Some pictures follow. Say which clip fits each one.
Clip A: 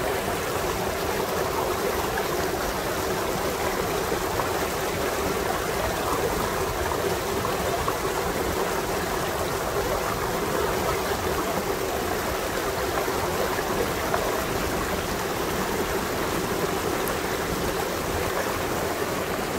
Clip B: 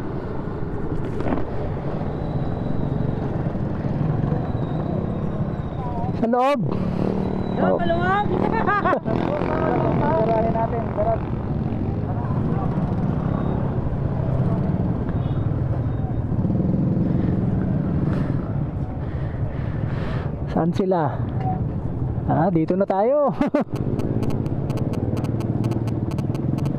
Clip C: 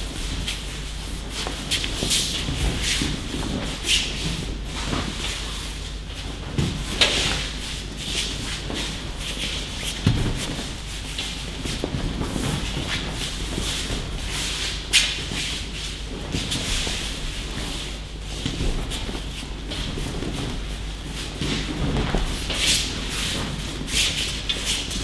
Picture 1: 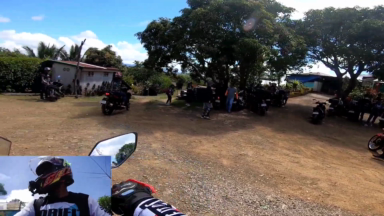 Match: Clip B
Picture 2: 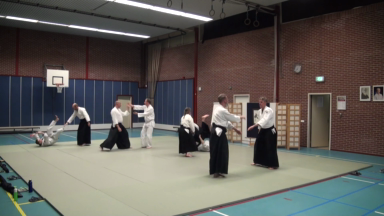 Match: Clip C